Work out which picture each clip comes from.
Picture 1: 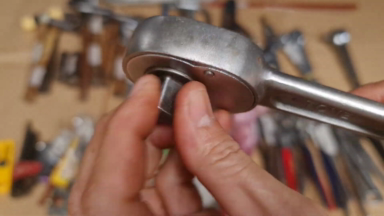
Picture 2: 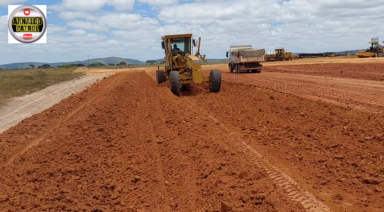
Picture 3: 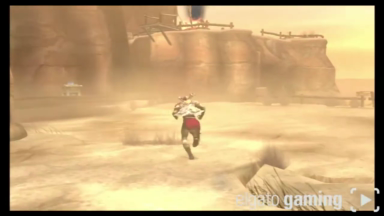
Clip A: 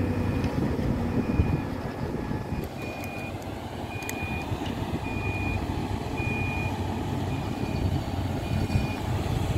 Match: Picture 2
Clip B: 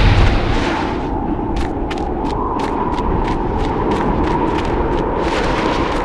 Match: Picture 3